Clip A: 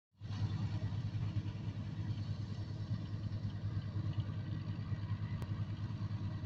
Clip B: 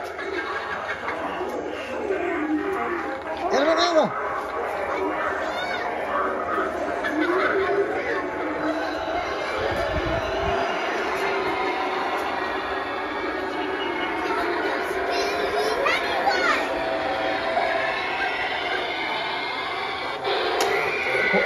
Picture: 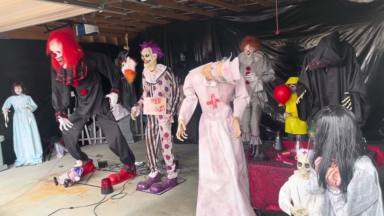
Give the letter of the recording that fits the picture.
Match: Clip B